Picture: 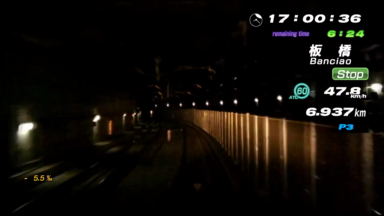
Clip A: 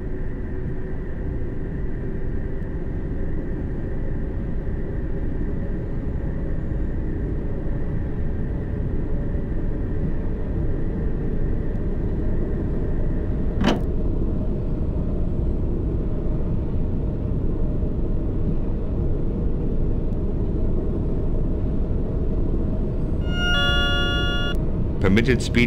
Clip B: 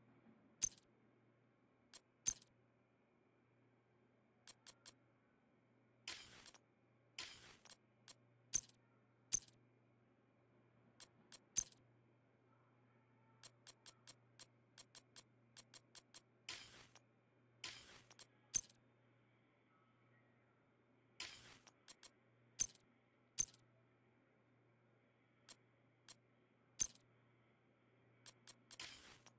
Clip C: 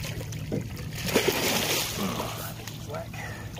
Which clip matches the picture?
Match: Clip A